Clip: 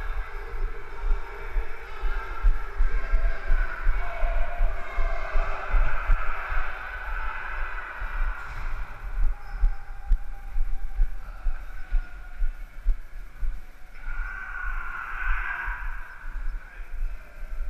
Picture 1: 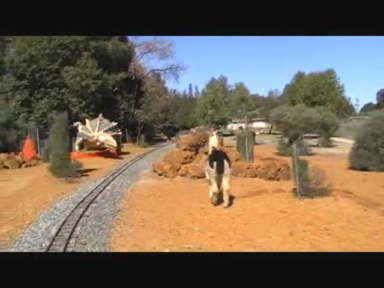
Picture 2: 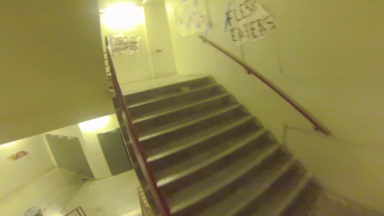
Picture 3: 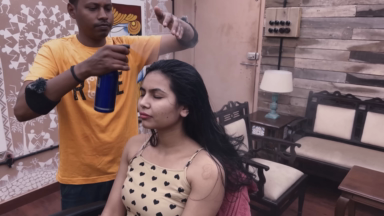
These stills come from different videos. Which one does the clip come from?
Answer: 2